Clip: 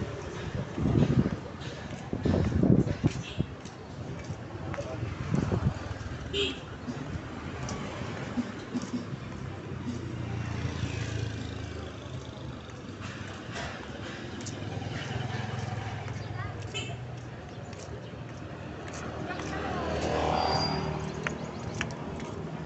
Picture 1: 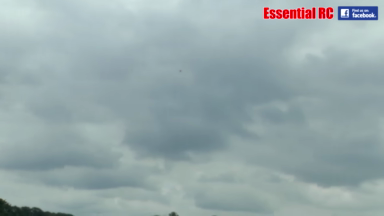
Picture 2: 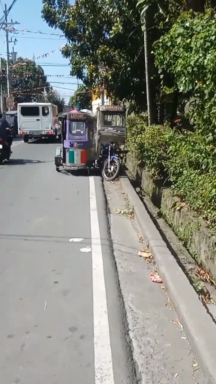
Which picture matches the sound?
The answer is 2